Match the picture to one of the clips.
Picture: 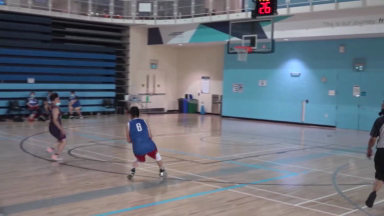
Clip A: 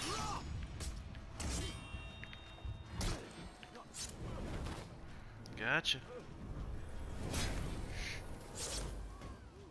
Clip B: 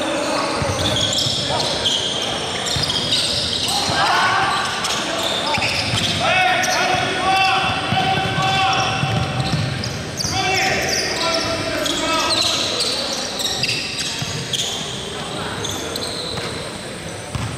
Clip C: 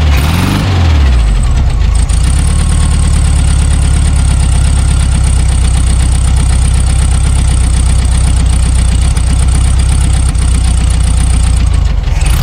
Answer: B